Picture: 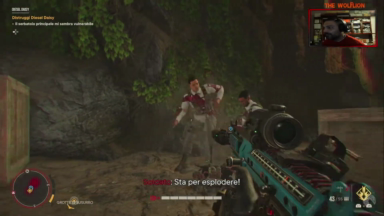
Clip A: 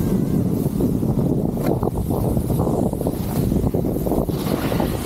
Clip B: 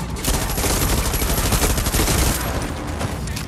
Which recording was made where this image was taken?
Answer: B